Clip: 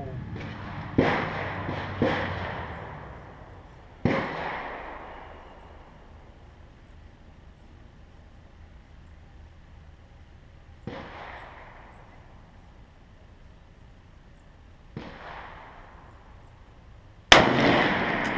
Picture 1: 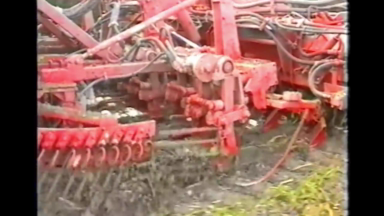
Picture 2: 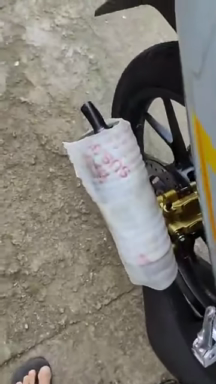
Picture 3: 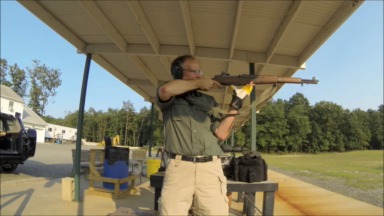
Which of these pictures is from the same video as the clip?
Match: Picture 3